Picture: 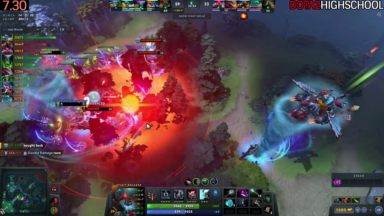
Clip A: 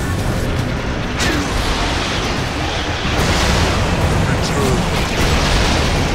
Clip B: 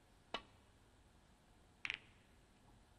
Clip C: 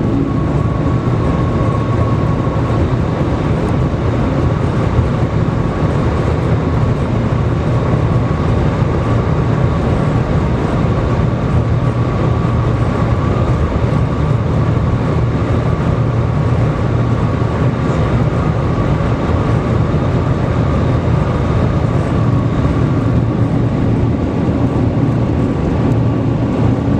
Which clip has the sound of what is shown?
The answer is A